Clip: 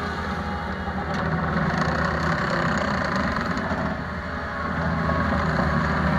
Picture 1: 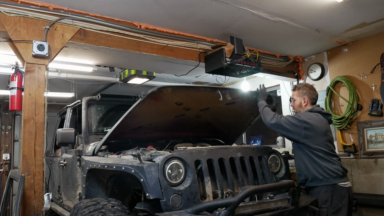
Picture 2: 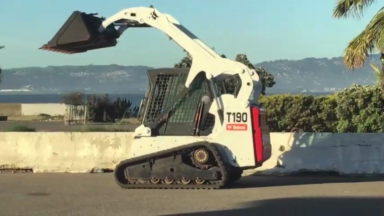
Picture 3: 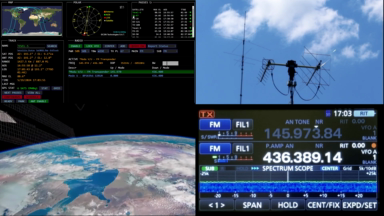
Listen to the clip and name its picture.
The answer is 2